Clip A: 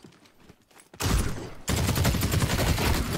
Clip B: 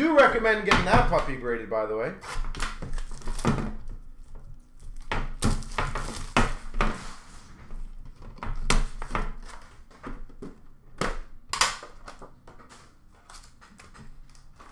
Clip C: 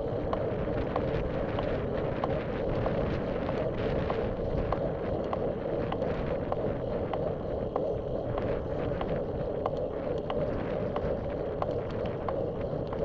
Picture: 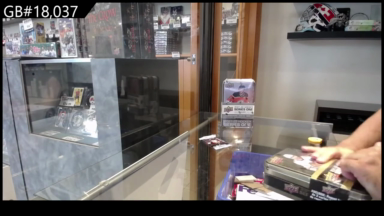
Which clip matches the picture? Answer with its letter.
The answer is B